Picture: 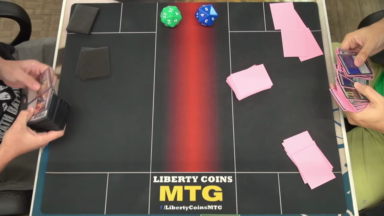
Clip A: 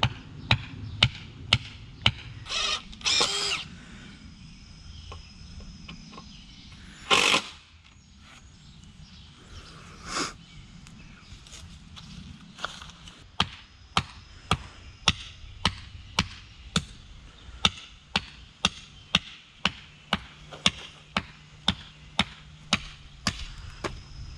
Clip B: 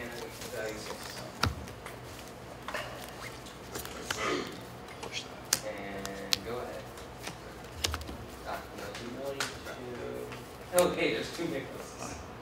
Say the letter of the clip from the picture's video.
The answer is B